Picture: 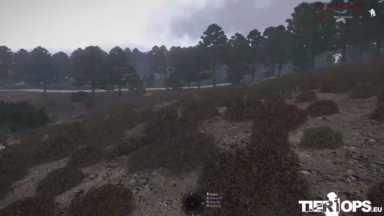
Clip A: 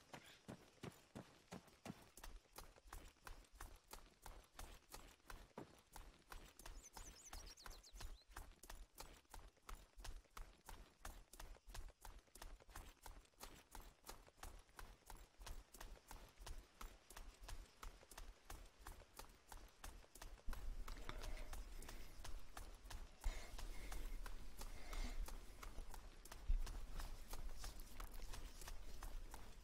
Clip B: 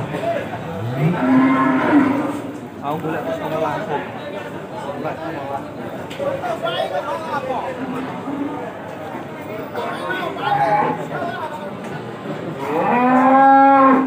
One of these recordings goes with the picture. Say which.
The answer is A